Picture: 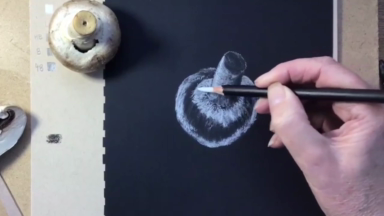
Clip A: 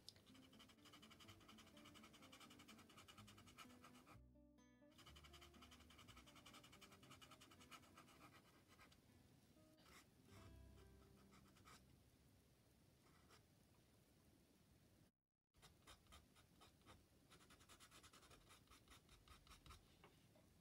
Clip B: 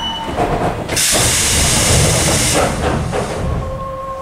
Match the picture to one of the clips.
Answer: A